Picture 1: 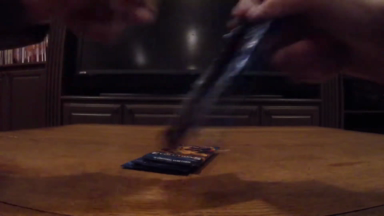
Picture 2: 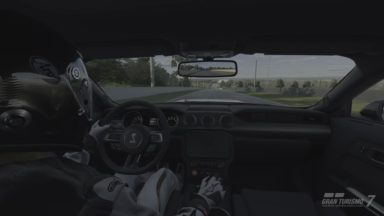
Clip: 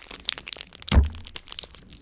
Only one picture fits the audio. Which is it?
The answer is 1